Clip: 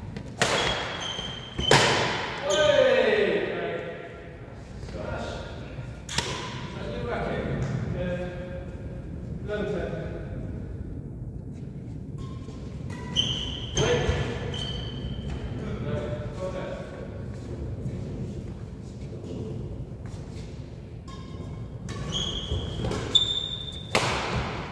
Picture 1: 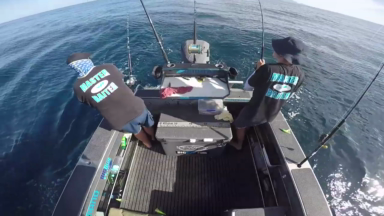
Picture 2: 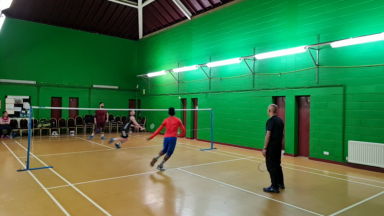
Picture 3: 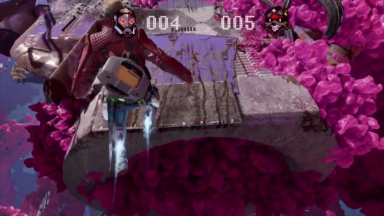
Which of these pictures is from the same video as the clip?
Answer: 2